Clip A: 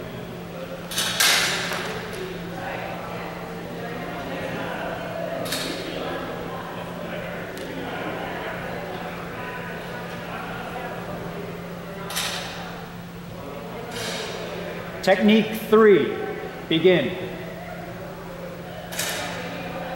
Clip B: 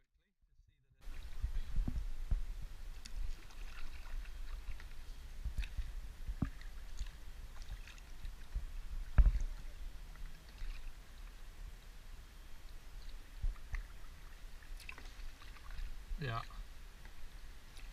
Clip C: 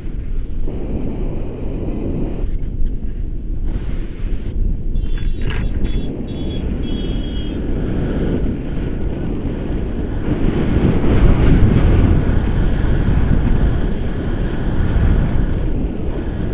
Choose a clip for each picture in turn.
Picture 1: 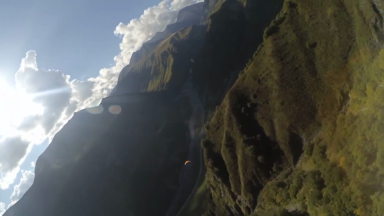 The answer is C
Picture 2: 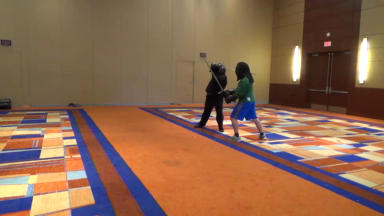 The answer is A